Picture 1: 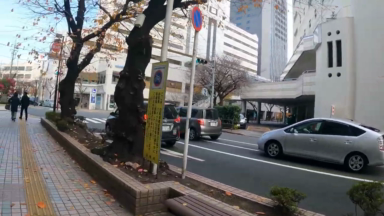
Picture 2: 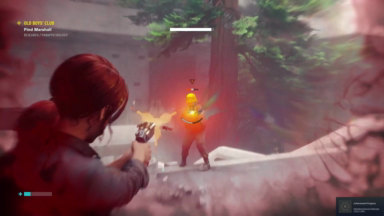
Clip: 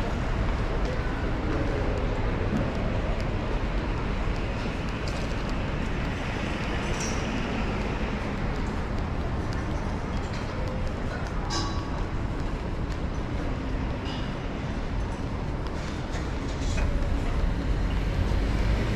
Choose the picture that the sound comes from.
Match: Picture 1